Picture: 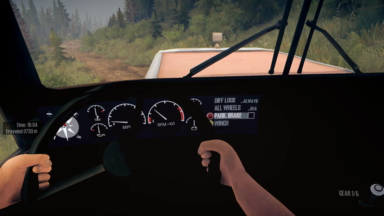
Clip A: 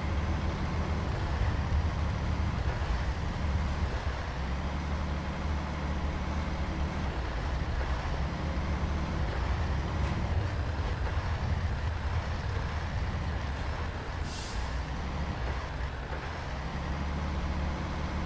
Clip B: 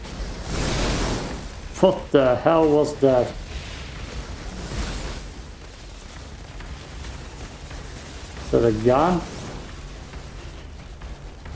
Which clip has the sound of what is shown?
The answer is A